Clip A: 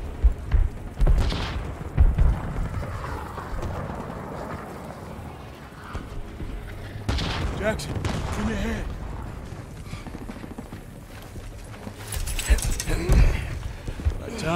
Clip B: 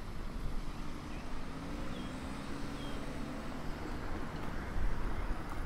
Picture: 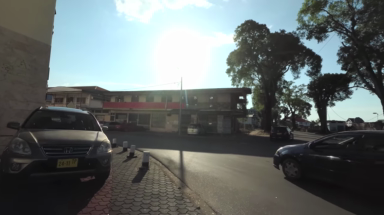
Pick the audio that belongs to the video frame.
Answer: B